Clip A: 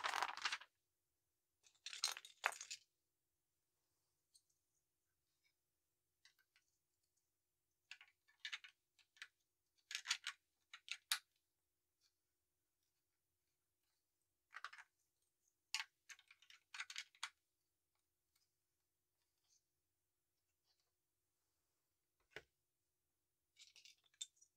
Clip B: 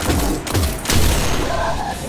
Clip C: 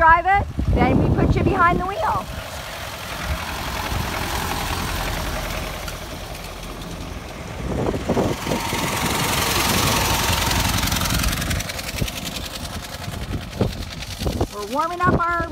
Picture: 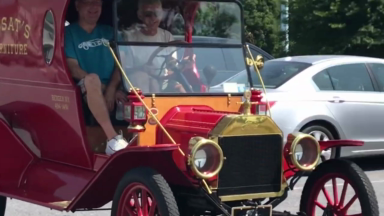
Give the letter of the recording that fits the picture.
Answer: C